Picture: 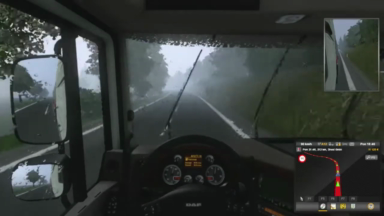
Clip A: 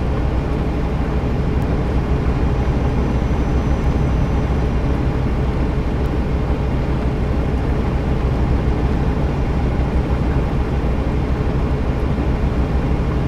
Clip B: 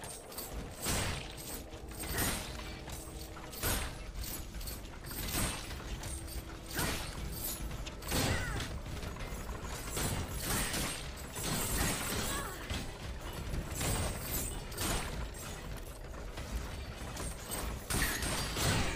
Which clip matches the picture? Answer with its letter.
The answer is A